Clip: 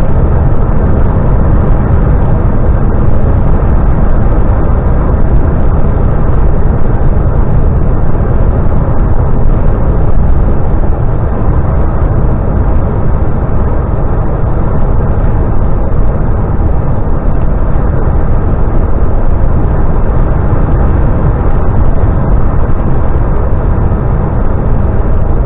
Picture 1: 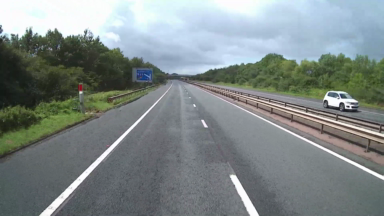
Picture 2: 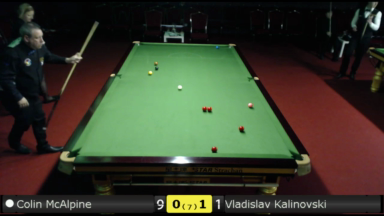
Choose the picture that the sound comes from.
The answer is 1